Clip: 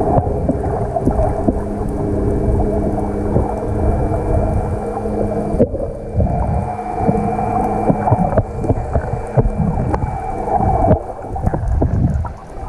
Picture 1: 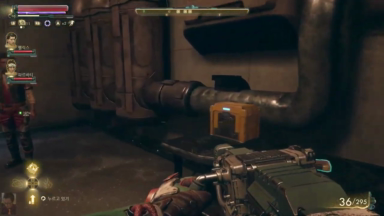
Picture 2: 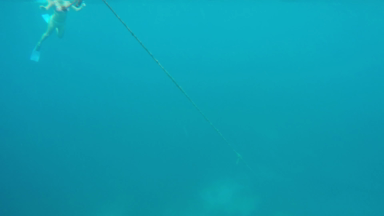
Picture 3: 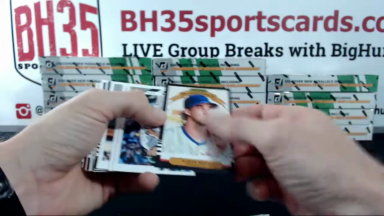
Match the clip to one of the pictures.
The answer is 2